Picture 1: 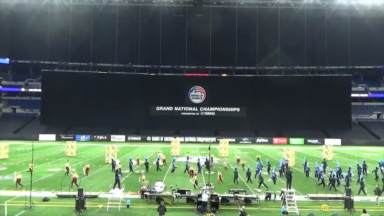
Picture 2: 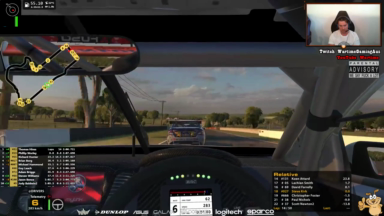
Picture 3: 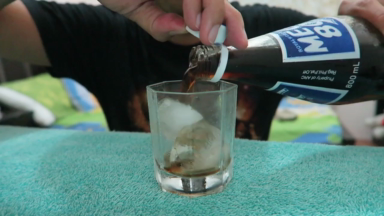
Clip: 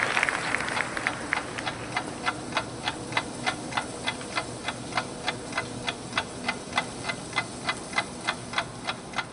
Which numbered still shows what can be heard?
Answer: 1